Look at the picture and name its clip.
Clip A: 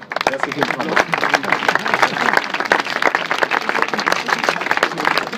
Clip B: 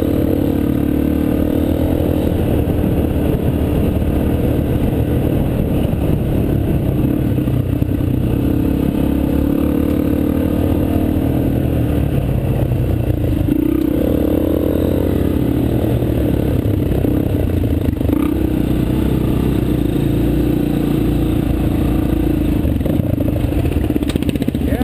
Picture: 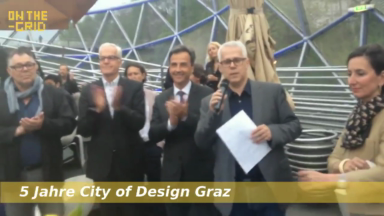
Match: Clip A